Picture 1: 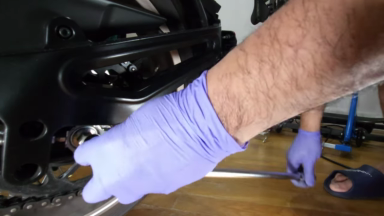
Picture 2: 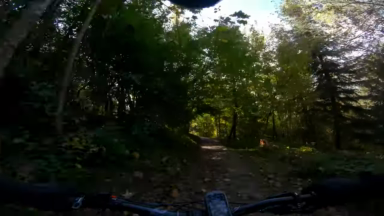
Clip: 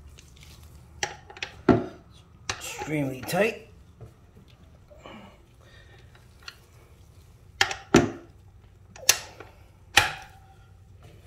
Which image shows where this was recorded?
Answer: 1